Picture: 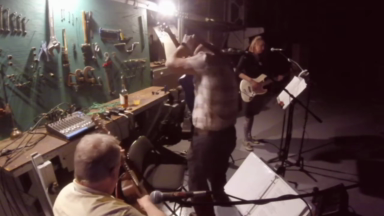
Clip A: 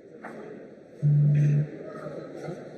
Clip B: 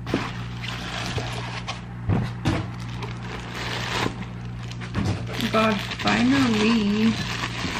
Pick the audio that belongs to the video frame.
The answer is A